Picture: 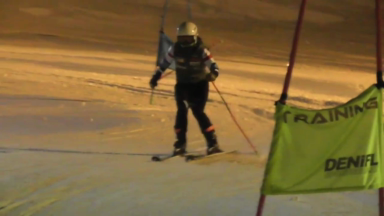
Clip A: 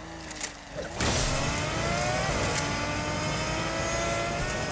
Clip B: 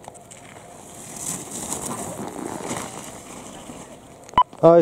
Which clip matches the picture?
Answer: B